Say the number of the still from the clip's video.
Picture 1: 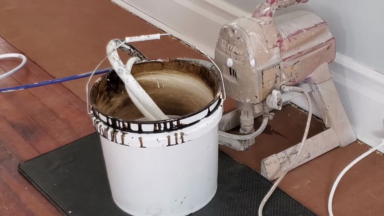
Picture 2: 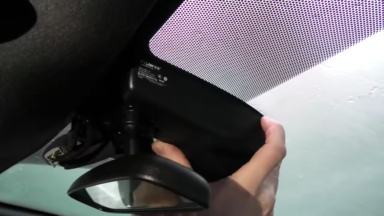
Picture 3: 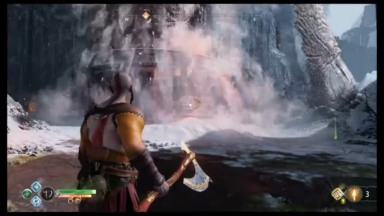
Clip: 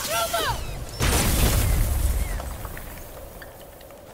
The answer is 3